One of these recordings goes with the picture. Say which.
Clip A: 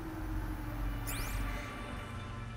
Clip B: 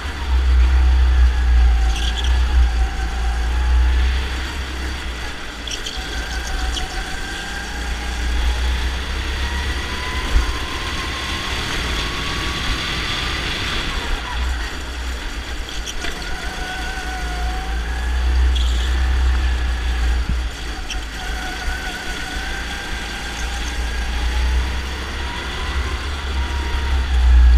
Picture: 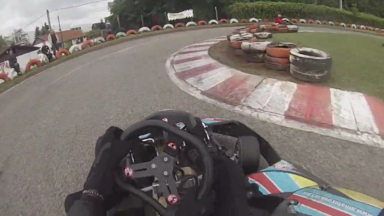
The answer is B